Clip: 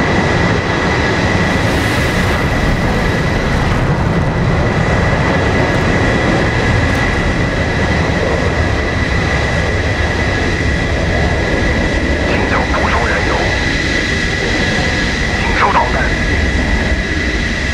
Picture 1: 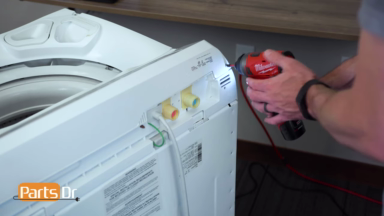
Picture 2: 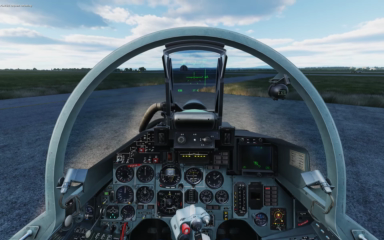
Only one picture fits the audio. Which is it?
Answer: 2